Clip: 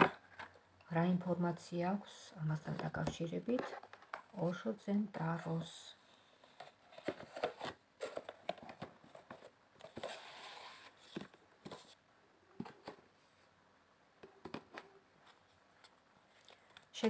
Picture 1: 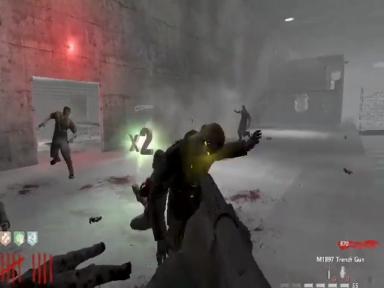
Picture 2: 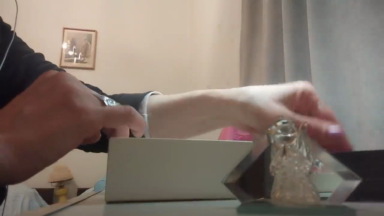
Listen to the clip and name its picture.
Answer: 2